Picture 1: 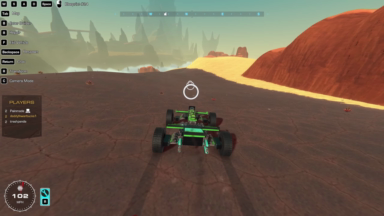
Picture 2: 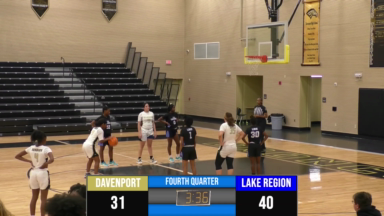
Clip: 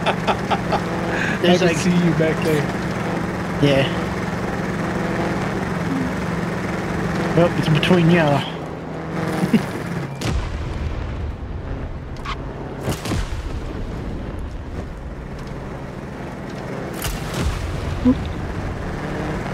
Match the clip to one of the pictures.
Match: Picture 1